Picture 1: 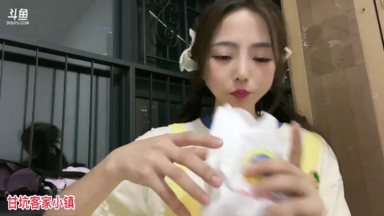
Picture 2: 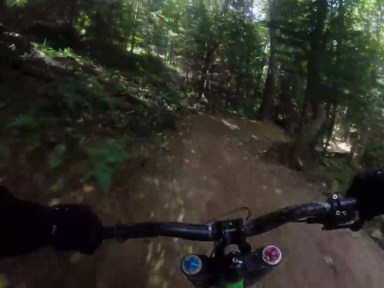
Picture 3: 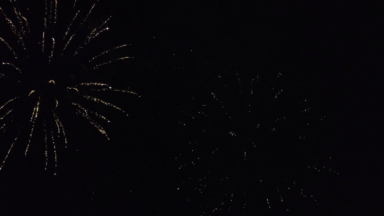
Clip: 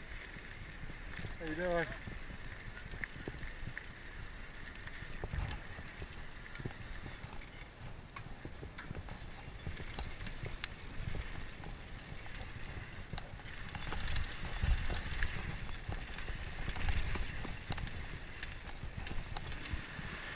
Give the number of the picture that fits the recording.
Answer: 2